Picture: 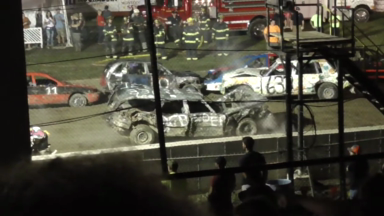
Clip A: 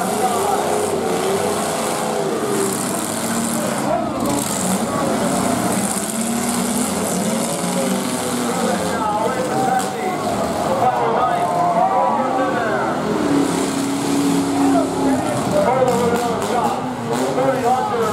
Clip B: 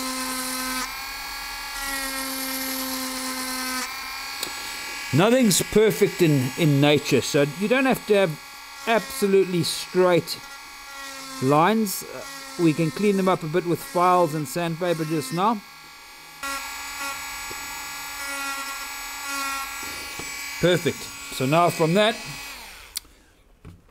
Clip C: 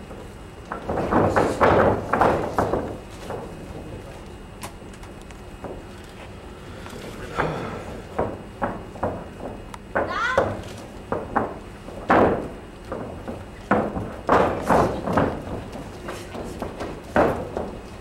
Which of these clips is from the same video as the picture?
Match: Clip A